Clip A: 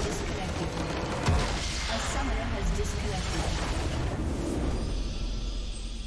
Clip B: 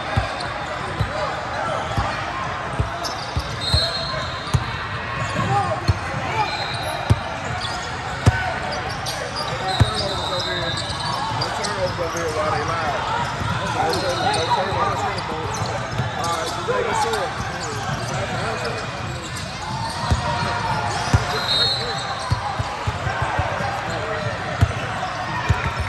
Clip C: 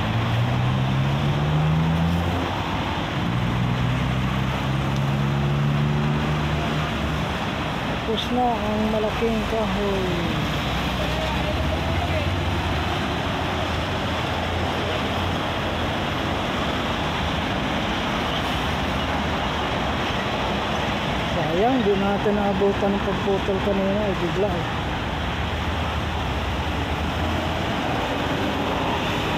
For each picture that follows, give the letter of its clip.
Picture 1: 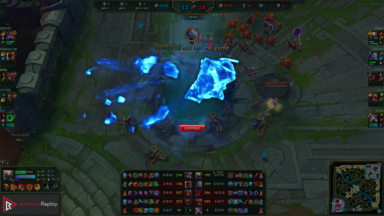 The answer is A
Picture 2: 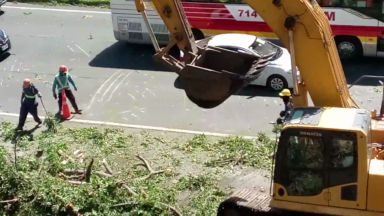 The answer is C